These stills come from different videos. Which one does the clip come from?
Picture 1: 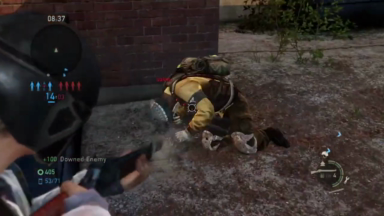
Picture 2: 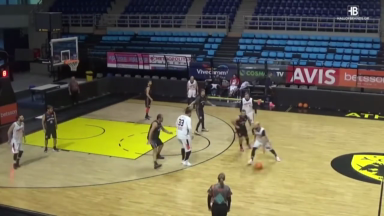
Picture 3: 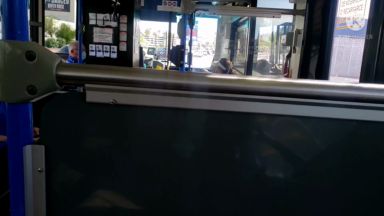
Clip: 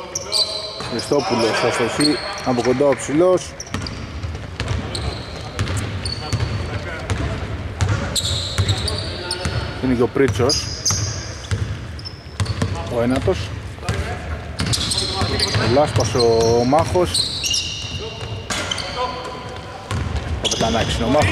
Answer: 2